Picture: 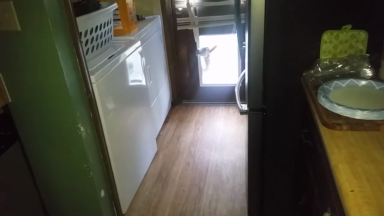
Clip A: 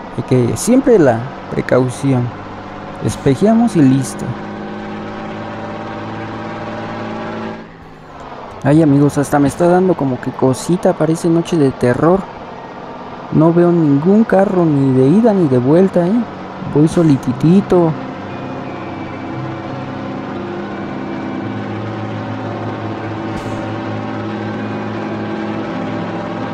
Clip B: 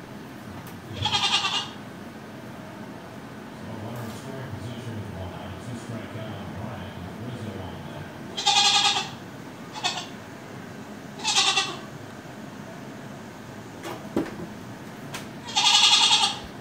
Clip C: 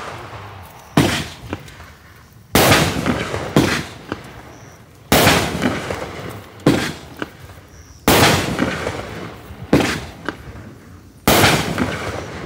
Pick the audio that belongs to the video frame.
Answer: B